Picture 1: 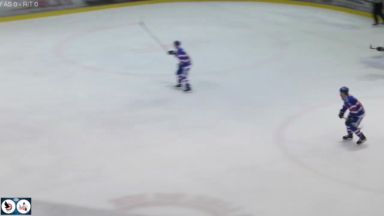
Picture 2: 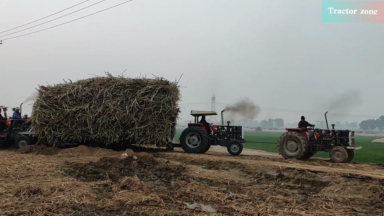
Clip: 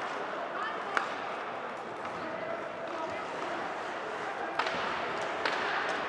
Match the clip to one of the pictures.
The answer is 1